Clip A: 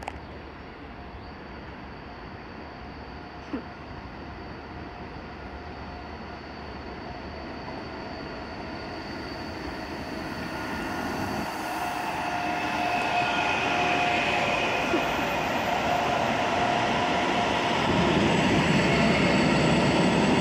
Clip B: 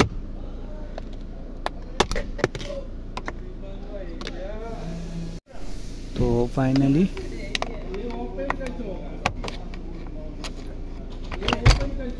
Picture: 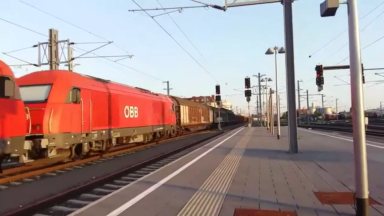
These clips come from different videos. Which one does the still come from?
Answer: A